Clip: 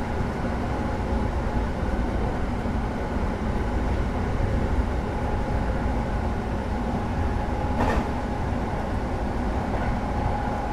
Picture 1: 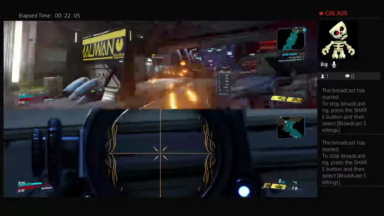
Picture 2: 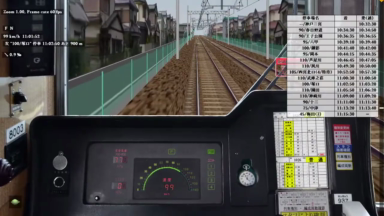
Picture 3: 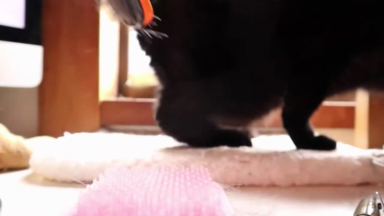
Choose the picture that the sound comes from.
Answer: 2